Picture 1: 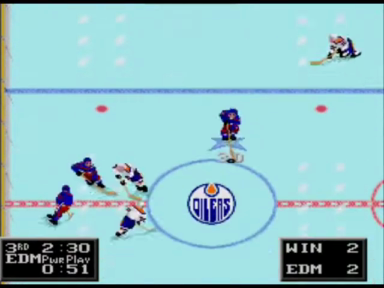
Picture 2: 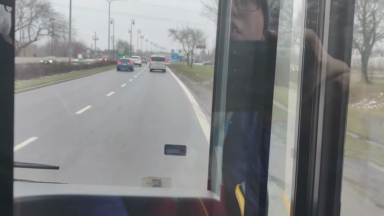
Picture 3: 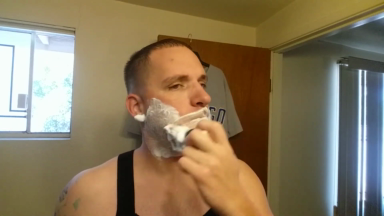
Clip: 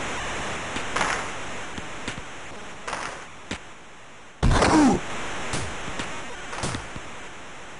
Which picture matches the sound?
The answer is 1